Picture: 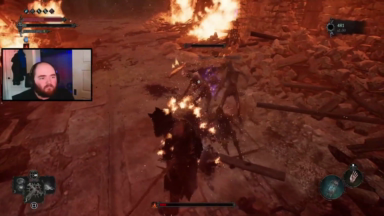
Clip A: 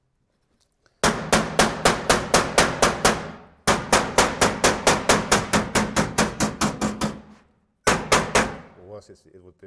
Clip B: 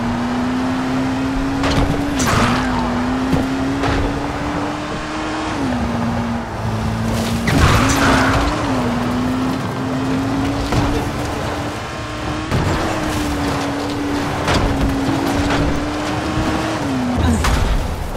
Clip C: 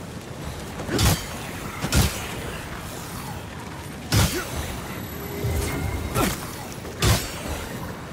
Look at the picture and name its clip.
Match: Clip C